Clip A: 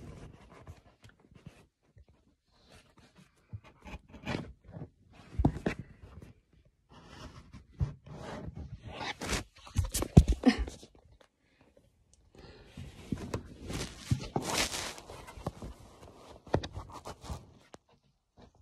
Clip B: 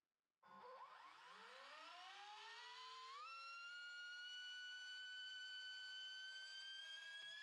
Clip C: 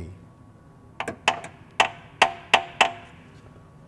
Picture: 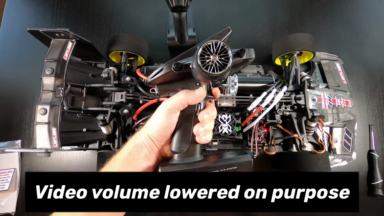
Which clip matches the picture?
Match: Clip B